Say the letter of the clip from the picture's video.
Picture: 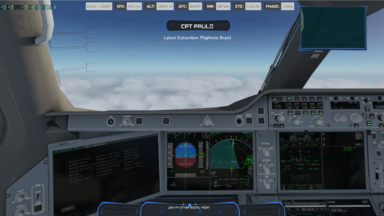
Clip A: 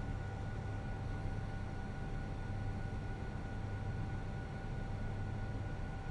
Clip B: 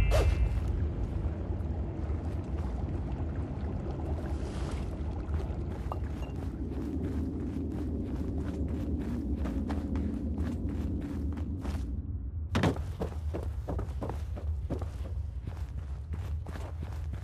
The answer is A